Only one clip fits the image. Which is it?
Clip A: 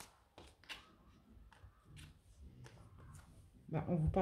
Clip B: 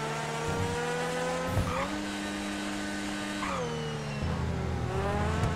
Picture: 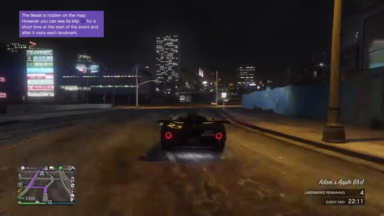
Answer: B